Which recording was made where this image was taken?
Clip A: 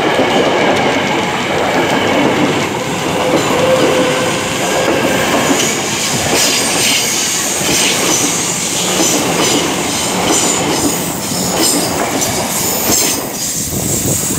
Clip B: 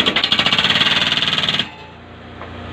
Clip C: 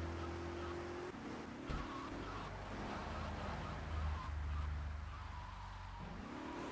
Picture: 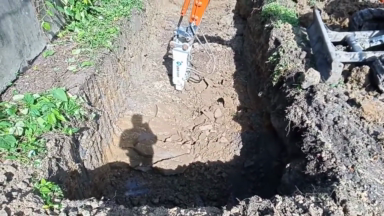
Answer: B